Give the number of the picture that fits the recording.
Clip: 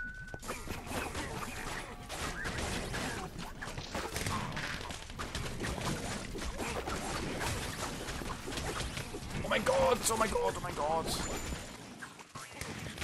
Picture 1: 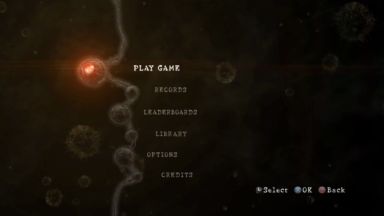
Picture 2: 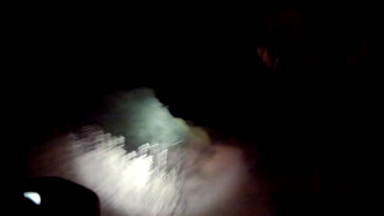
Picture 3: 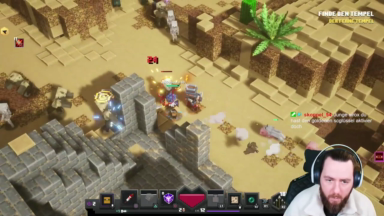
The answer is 3